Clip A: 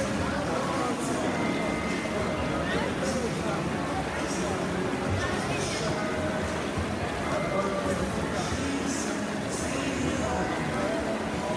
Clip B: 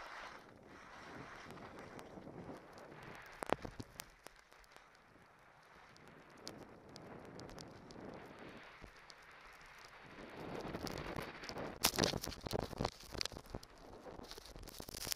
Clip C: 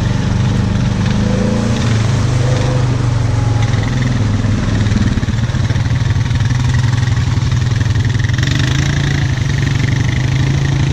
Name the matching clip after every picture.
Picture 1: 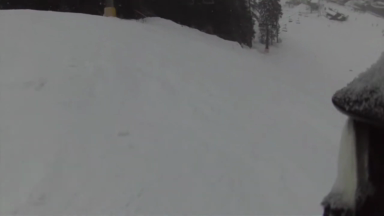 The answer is B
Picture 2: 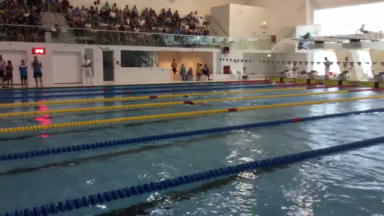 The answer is A